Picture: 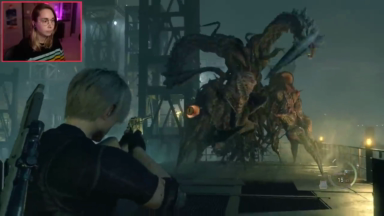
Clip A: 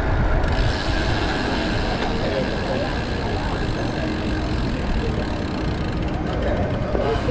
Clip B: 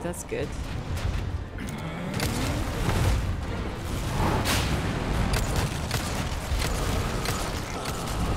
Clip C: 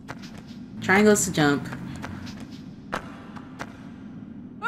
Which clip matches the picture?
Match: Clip B